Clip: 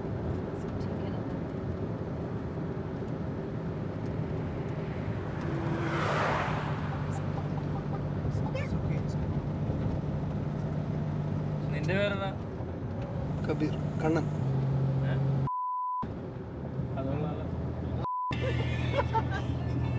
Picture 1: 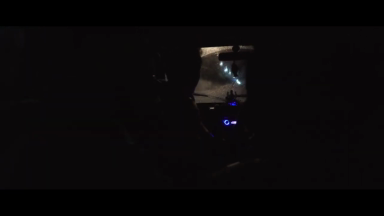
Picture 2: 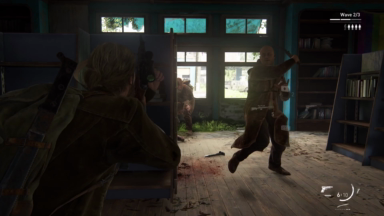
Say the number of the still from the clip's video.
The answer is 1